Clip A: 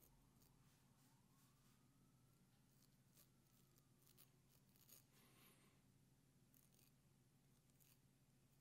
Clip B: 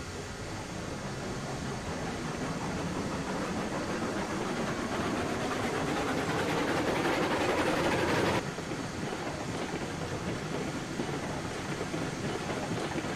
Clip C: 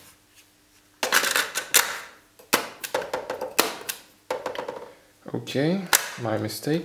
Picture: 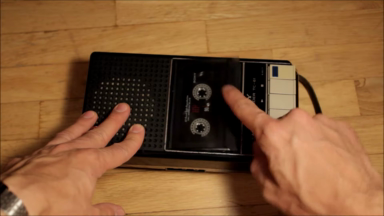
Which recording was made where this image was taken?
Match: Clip C